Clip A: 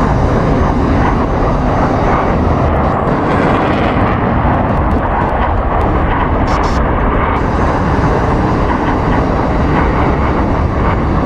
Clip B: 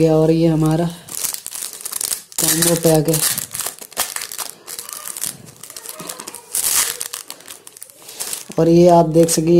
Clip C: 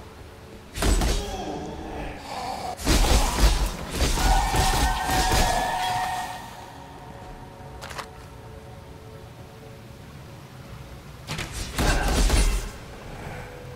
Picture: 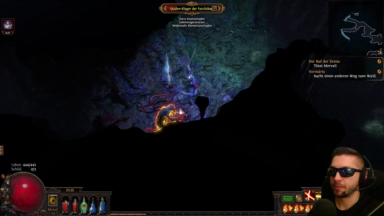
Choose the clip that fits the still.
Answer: C